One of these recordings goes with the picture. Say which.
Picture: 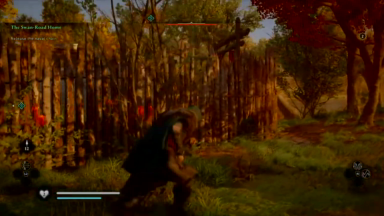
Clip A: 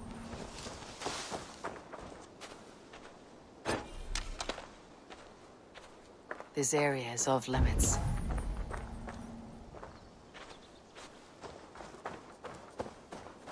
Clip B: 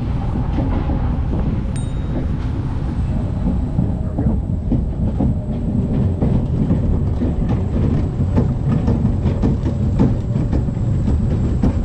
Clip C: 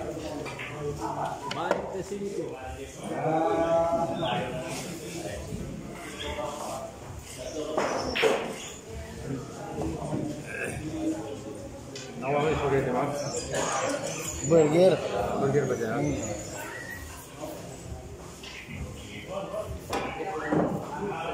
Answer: A